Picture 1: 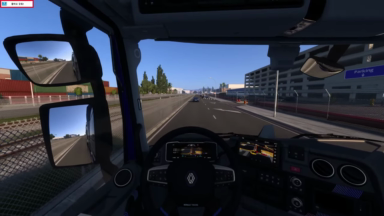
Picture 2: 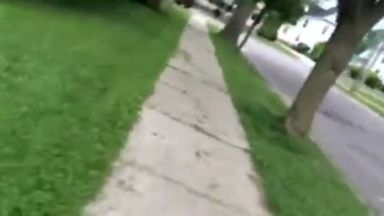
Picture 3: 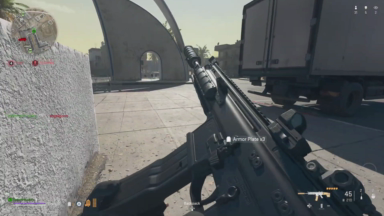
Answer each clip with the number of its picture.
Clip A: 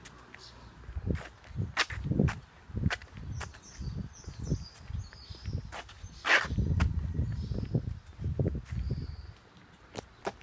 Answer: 2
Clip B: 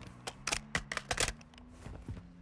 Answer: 3